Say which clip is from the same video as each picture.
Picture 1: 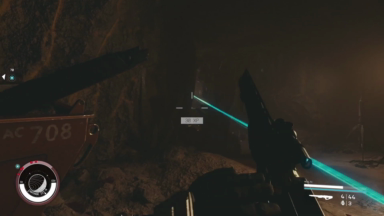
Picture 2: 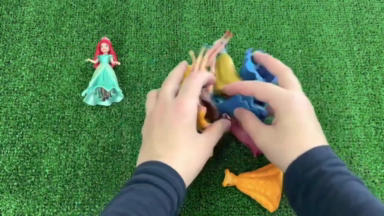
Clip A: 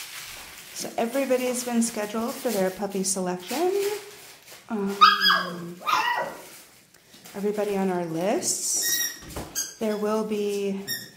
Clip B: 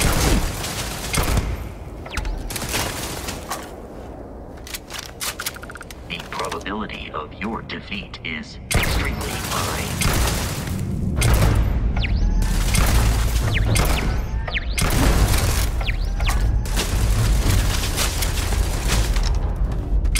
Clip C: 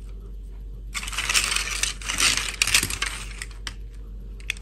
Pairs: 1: B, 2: C